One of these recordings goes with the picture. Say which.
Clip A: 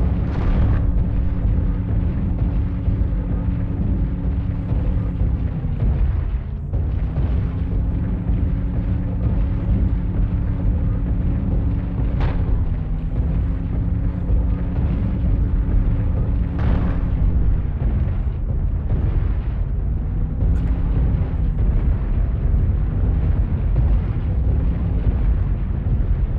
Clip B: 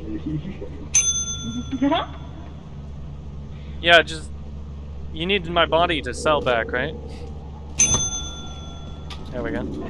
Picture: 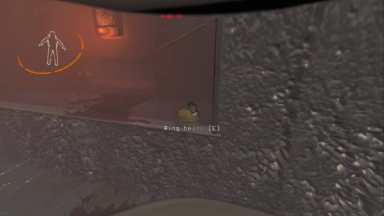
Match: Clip B